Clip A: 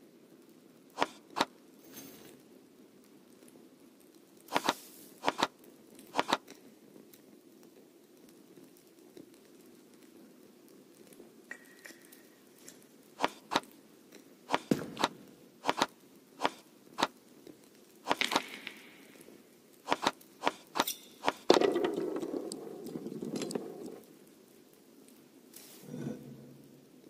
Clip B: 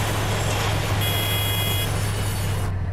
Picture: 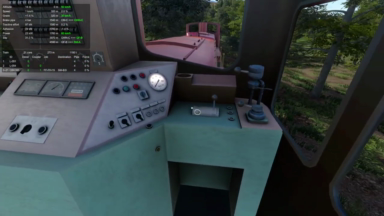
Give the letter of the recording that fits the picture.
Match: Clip B